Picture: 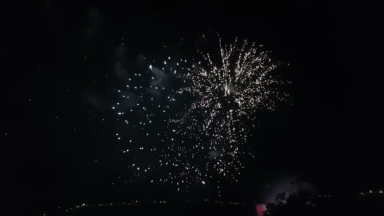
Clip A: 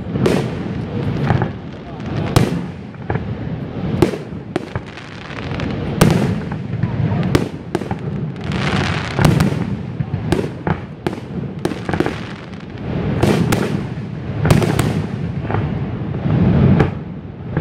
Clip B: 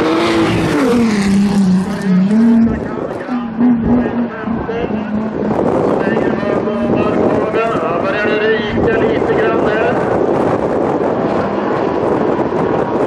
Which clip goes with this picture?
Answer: A